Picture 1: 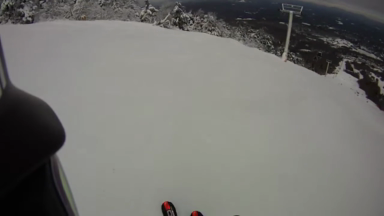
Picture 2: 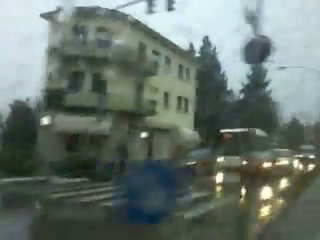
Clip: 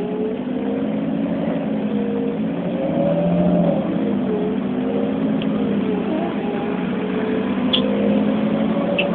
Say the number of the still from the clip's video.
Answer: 2